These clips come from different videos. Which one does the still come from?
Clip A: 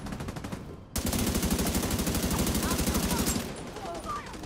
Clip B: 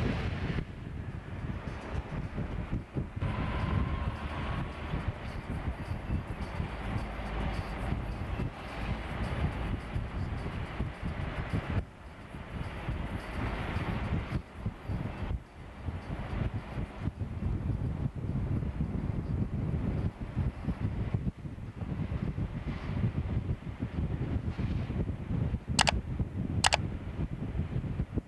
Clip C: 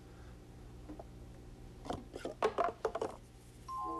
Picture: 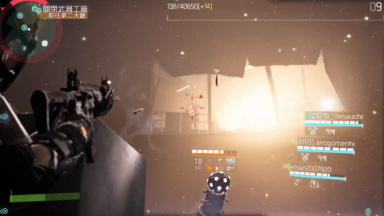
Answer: A